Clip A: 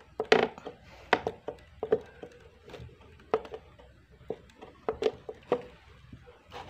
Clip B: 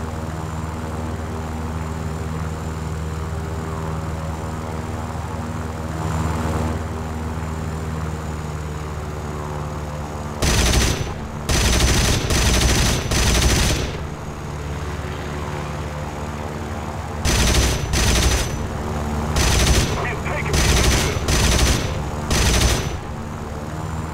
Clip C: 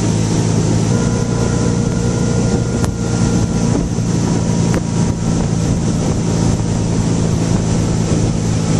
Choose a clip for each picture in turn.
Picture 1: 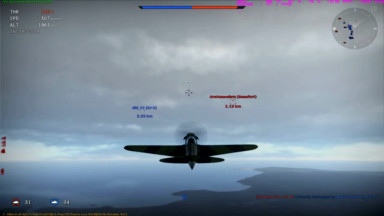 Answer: B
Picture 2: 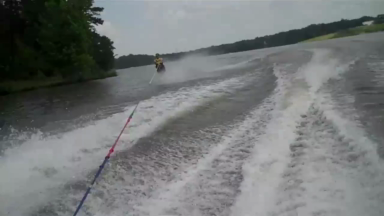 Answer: C